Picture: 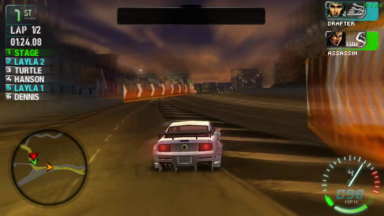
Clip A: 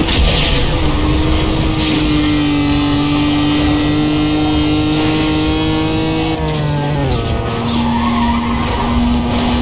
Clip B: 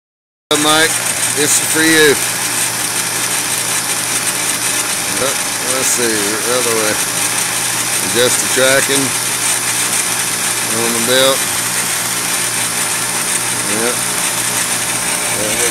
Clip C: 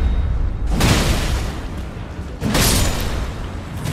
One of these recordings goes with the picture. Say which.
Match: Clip A